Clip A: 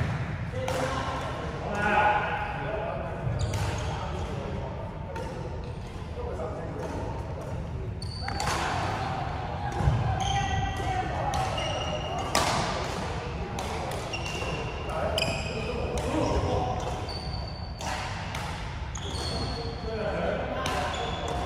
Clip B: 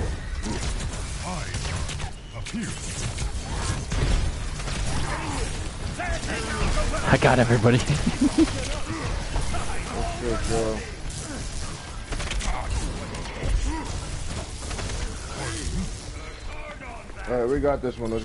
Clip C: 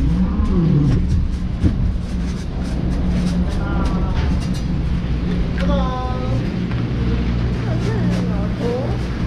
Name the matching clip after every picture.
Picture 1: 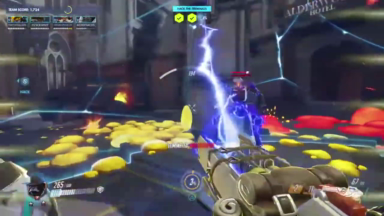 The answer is B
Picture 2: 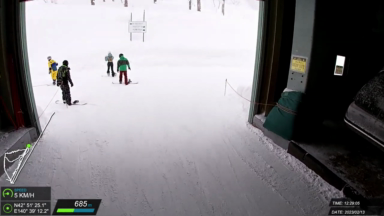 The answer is C